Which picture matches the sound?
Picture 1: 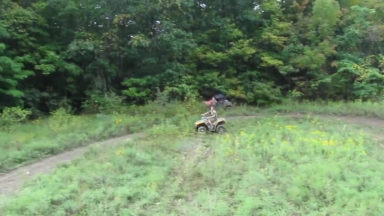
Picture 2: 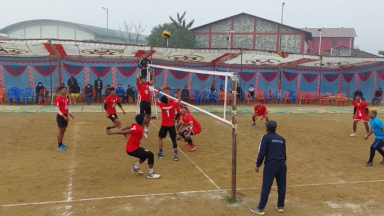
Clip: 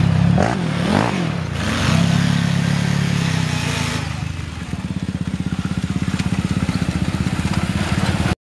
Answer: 1